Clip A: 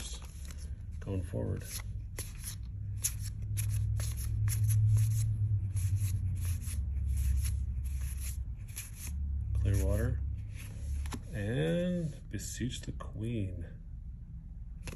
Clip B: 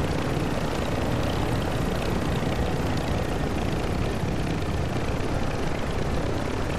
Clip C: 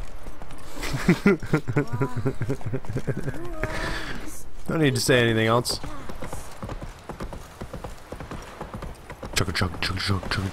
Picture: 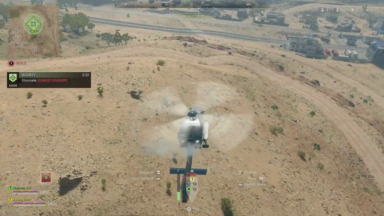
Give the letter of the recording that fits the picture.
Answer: B